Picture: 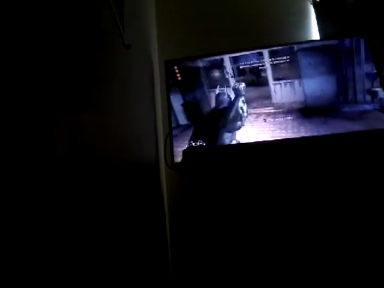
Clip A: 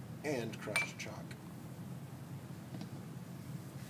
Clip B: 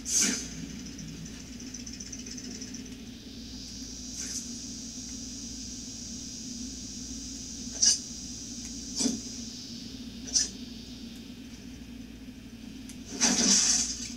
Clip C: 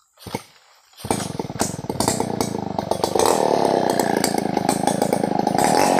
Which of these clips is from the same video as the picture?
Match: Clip B